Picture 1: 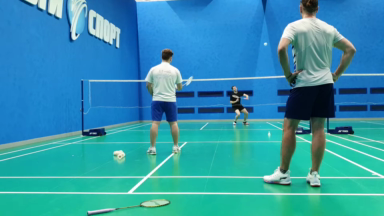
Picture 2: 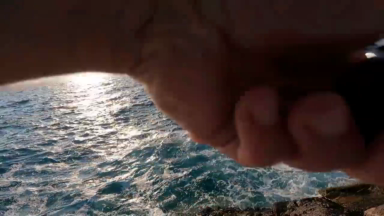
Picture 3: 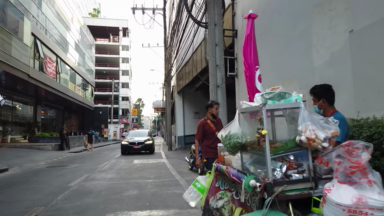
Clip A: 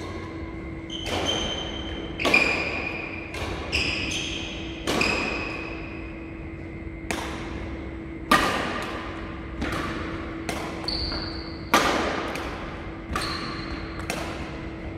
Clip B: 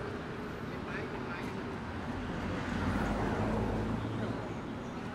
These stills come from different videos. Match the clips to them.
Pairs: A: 1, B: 3